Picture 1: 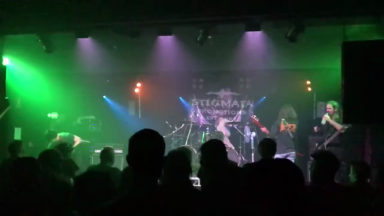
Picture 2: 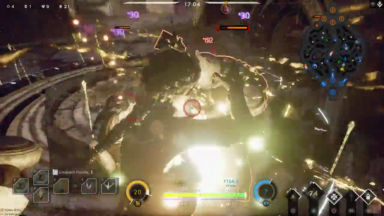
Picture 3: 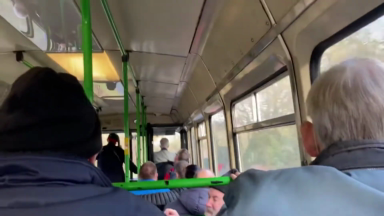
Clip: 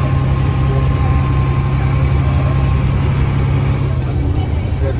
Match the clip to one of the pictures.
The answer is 3